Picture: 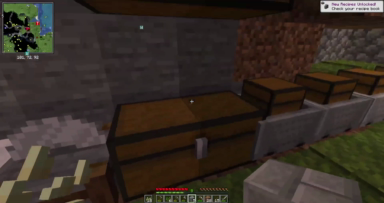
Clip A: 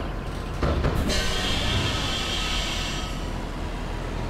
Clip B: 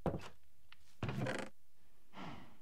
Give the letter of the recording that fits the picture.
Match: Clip B